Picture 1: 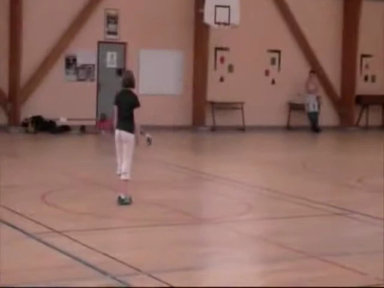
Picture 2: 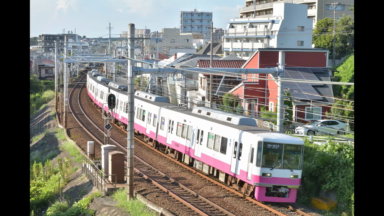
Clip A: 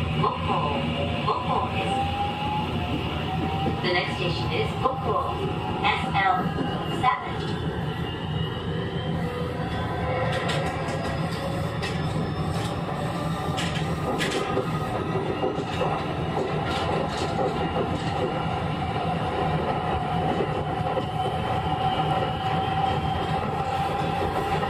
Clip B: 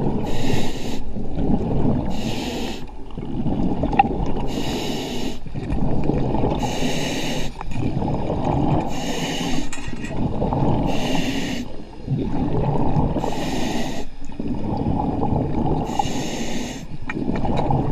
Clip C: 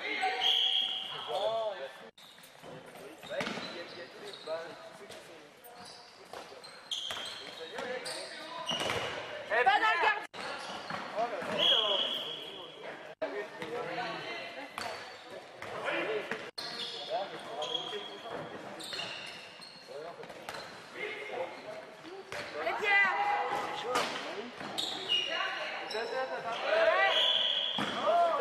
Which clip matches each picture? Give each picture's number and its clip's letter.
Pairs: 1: C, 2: A